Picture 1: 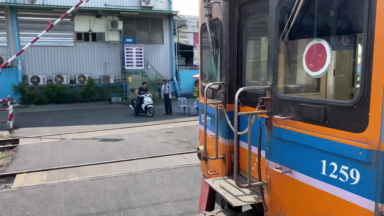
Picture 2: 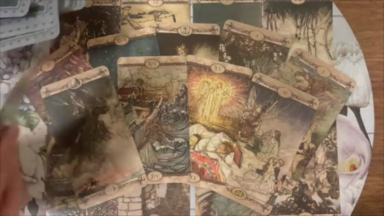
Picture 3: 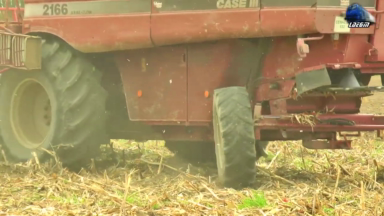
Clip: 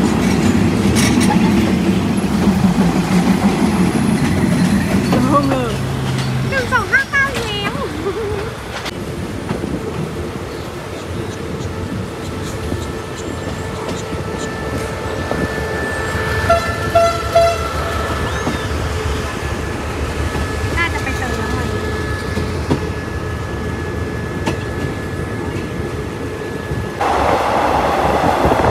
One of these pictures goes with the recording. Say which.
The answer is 1